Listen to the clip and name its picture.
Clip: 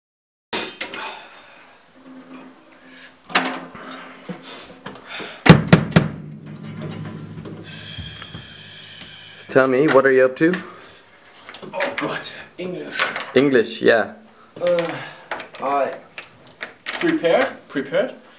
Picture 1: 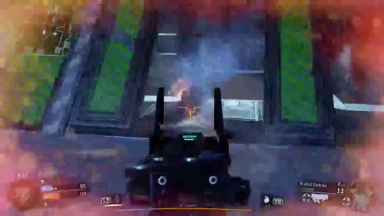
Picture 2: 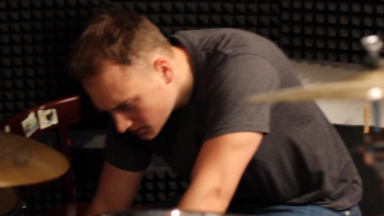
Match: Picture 2